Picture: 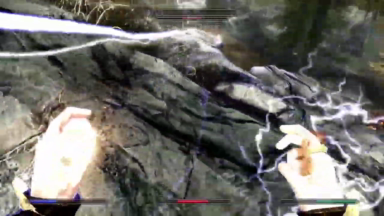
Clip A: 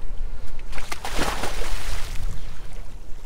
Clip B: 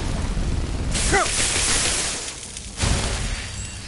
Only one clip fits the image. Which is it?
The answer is B